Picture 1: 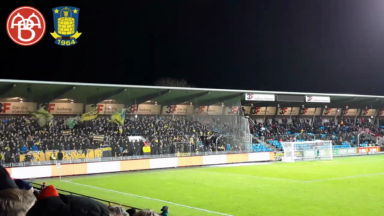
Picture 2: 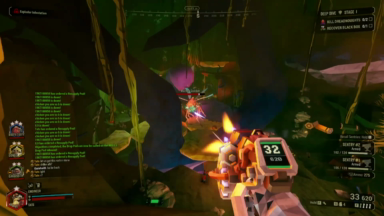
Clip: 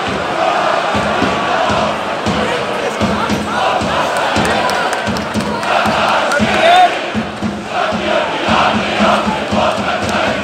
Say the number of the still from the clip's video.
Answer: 1